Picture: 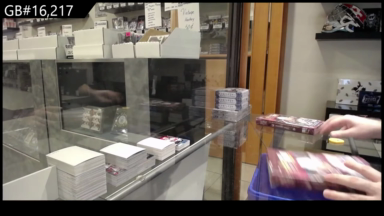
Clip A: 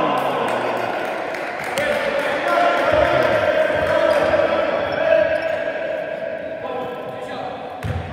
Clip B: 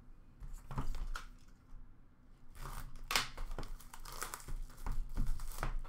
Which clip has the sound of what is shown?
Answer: B